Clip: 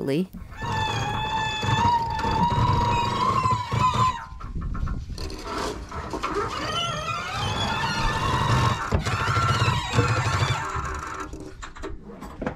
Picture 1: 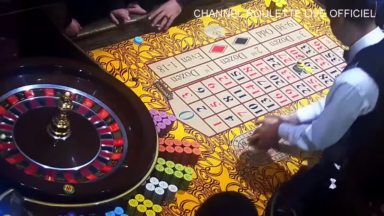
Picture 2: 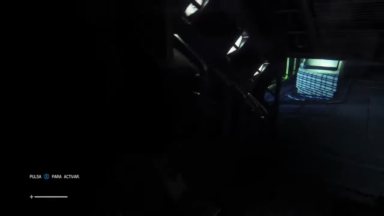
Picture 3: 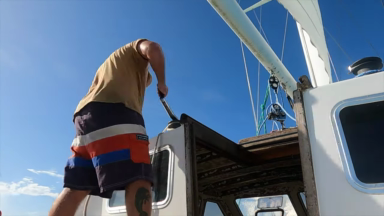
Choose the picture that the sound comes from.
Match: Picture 3